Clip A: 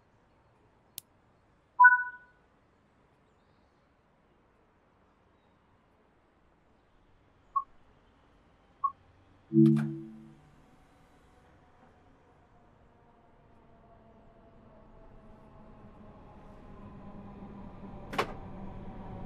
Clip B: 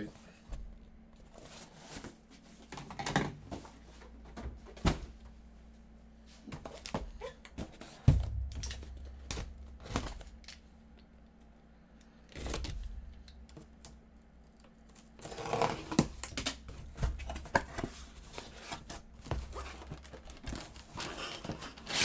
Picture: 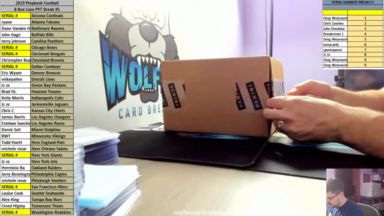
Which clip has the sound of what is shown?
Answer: B